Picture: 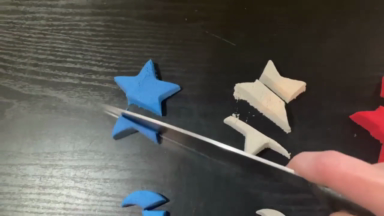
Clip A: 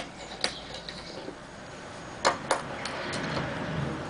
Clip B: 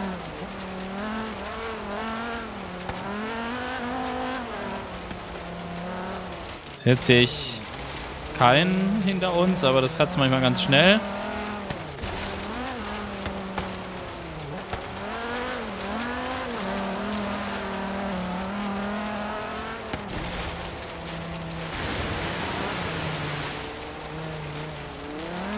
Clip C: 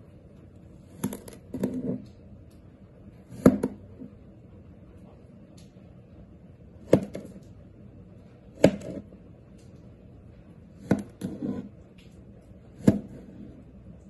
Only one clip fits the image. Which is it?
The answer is C